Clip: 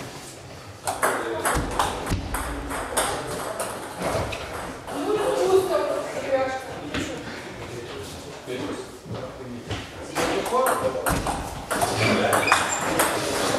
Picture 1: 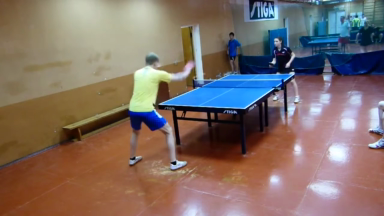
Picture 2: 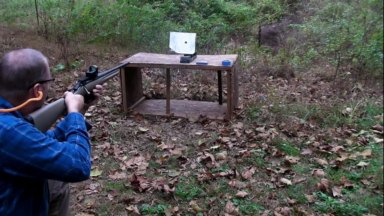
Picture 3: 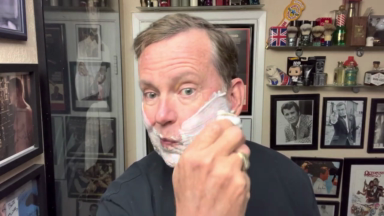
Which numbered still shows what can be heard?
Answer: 1